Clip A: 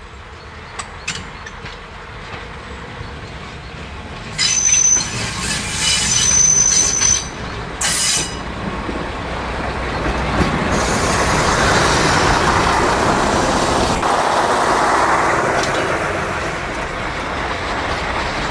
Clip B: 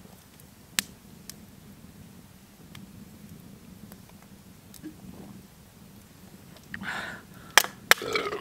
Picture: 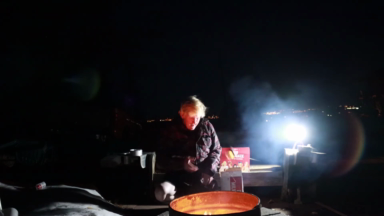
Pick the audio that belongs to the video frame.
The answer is B